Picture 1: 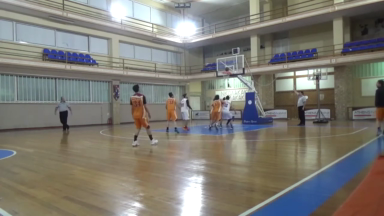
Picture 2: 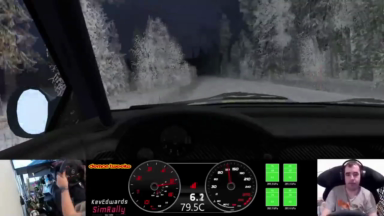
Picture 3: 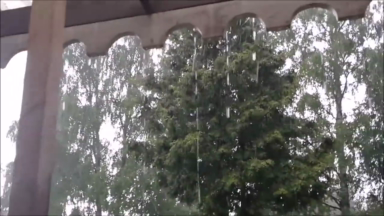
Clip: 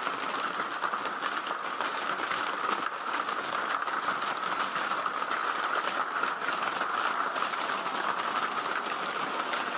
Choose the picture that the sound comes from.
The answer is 3